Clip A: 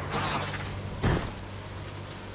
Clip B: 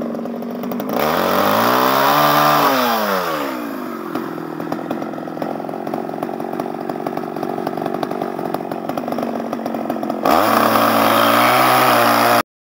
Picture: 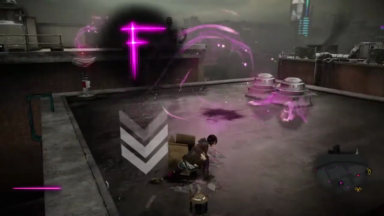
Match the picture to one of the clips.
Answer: A